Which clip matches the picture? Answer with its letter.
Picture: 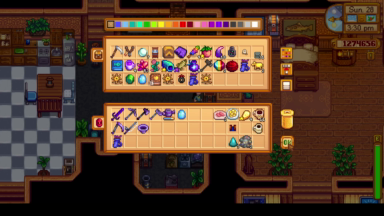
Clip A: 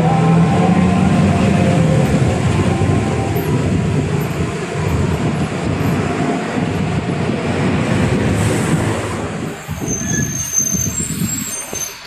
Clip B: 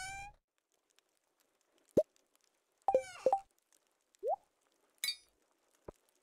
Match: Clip B